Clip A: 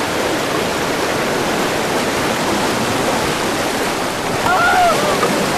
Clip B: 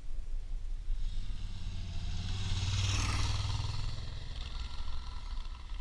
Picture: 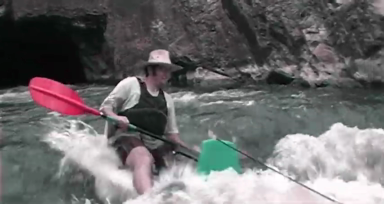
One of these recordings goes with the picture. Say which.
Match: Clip A